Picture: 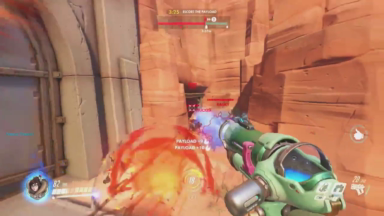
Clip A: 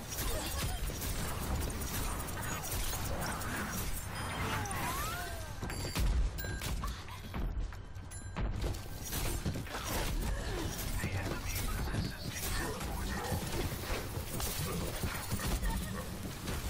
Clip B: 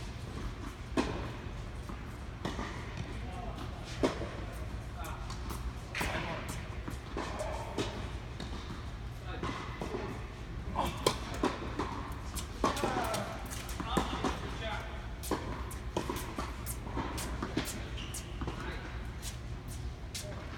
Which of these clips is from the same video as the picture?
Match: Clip A